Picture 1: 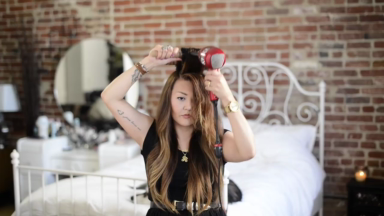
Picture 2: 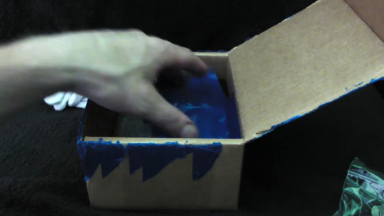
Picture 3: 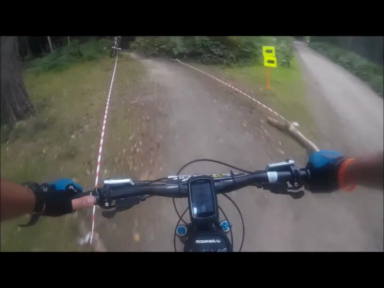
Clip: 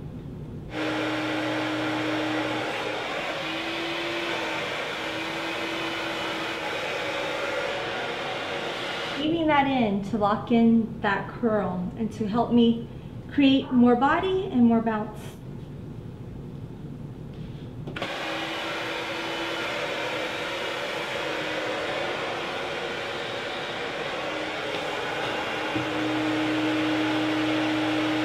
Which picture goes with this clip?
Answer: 1